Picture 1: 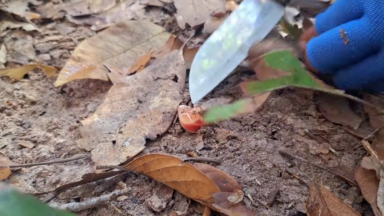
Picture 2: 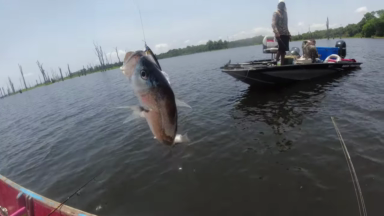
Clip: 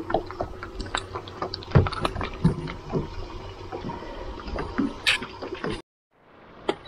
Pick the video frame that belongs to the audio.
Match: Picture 2